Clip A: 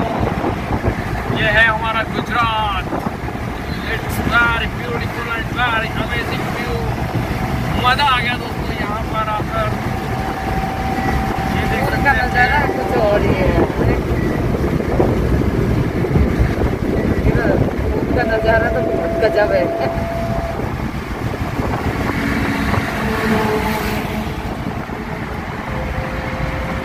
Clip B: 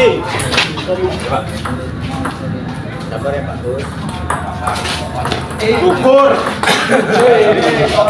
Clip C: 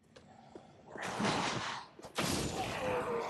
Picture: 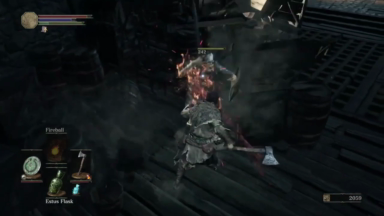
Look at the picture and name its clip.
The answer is C